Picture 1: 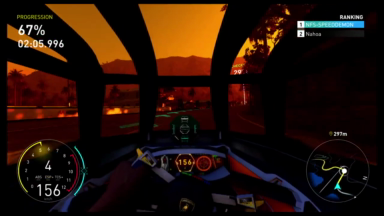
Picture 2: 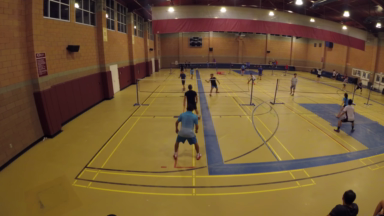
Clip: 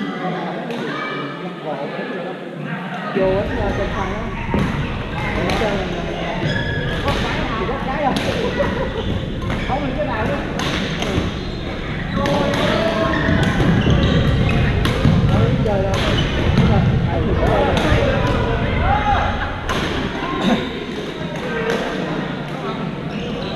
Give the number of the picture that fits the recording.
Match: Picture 2